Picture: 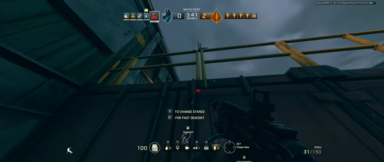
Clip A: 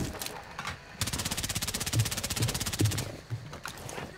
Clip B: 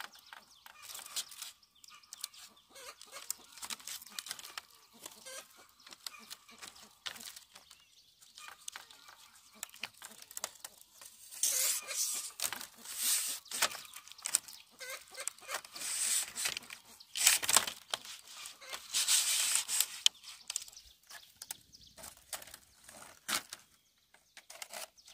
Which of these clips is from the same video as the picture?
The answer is A